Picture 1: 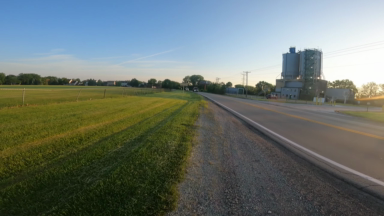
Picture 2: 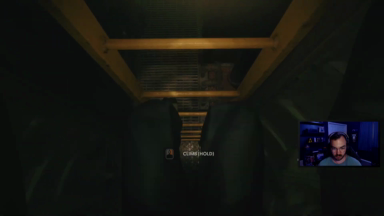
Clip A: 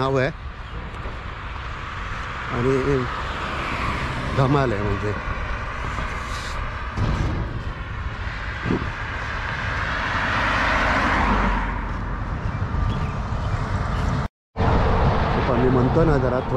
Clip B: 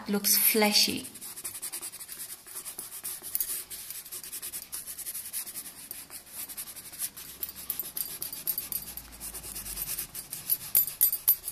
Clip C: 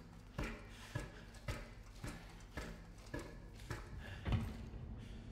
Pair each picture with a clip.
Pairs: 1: A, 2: C